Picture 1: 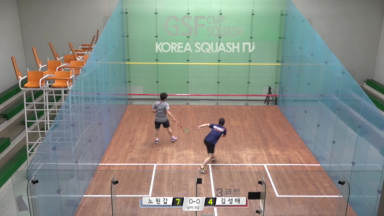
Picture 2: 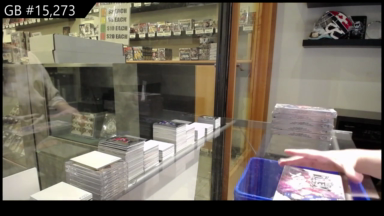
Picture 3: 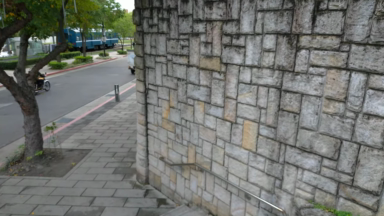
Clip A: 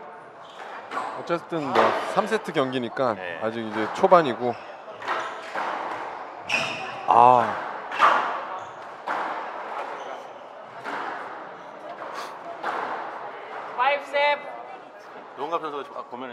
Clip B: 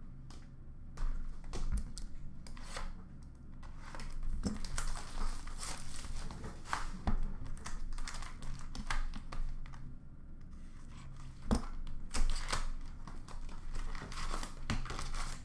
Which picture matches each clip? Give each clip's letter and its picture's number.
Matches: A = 1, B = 2